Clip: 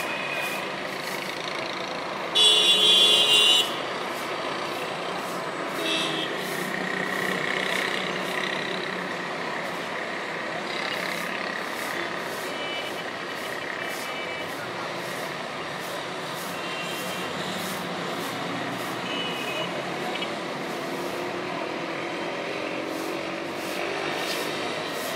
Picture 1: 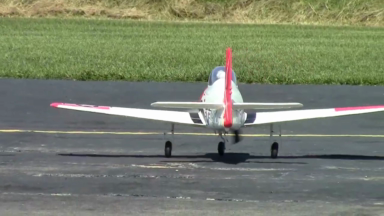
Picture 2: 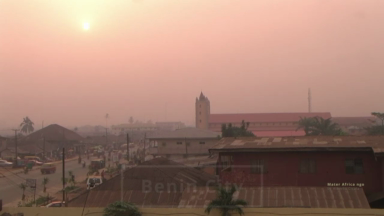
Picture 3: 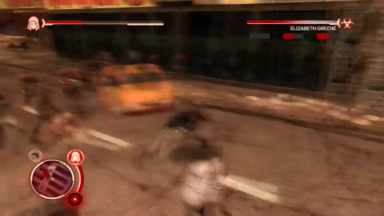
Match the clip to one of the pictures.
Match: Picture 2